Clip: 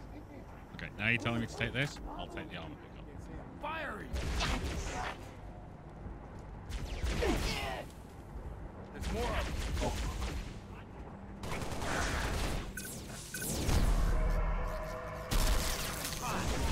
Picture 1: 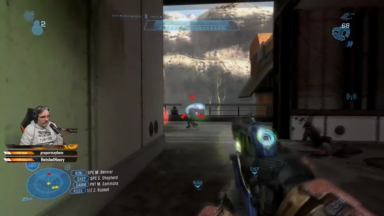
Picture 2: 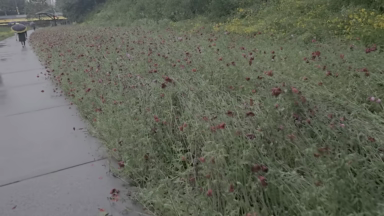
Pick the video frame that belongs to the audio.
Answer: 1